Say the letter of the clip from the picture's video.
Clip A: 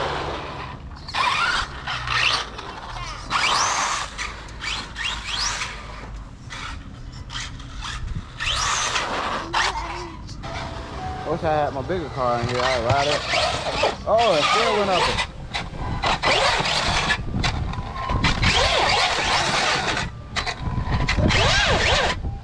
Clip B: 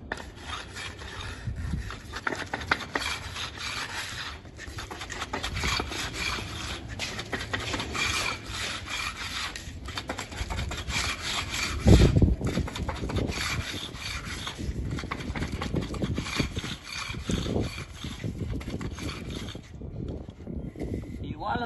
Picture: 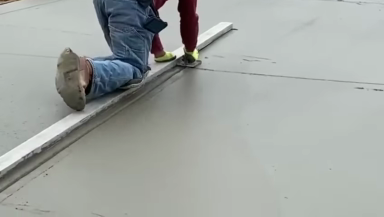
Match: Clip B